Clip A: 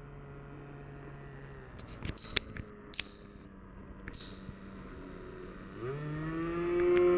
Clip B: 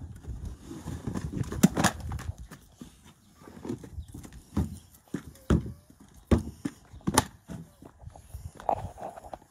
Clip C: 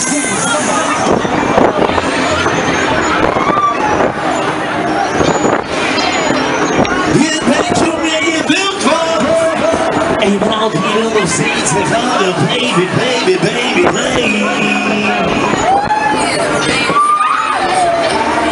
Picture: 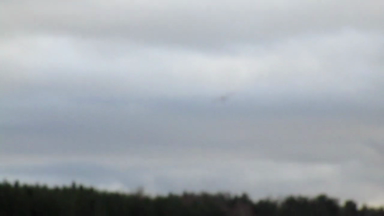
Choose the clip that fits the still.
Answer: A